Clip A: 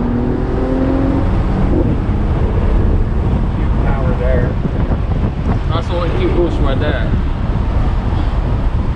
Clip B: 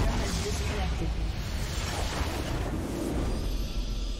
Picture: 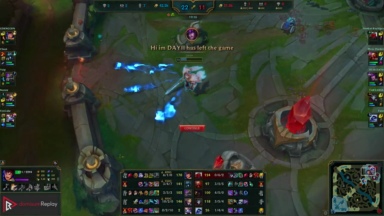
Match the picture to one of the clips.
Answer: B